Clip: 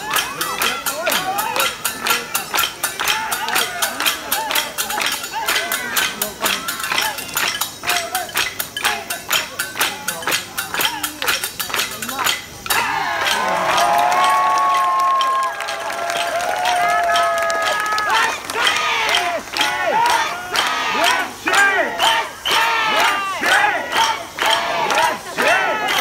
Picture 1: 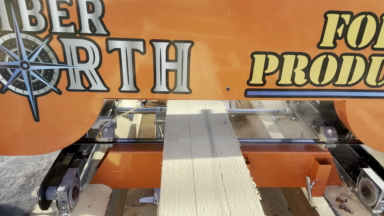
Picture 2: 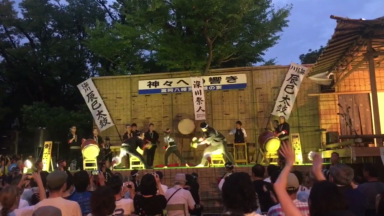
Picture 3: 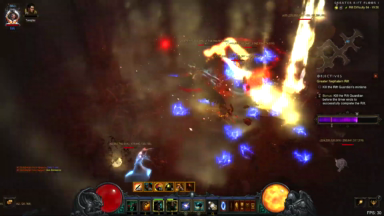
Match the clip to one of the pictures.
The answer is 2